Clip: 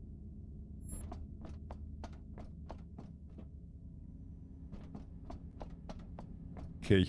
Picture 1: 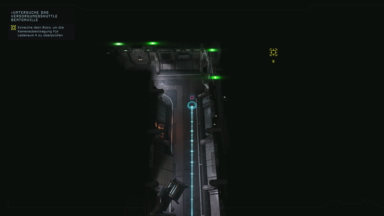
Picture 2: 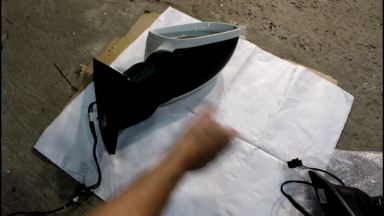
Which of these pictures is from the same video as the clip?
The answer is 1